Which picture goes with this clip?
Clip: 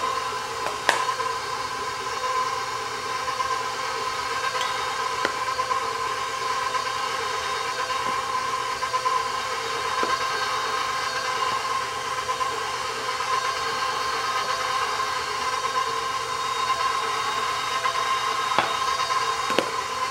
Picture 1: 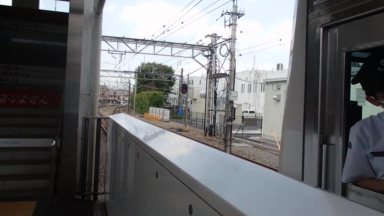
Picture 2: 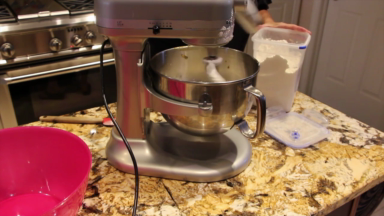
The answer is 2